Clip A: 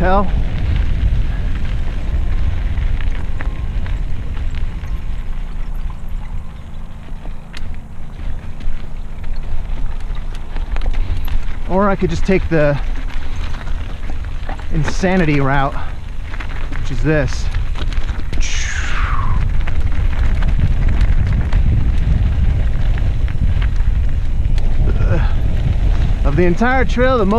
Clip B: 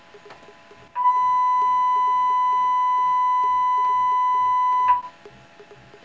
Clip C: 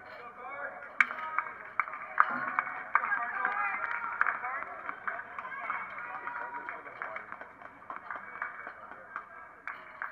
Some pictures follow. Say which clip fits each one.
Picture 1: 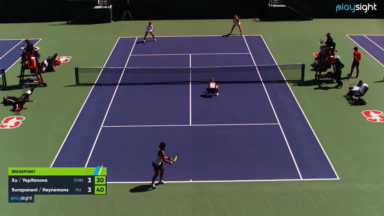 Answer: C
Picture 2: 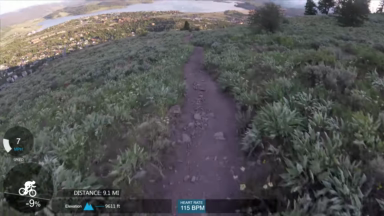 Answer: A